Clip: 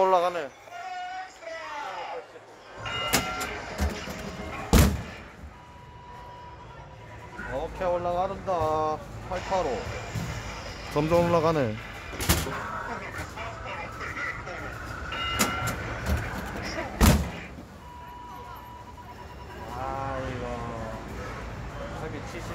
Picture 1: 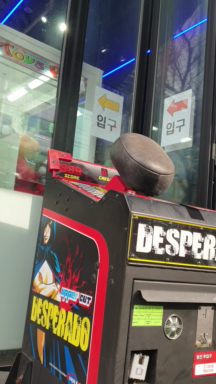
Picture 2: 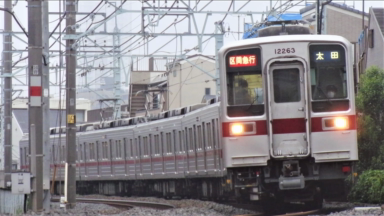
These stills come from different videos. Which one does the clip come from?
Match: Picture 1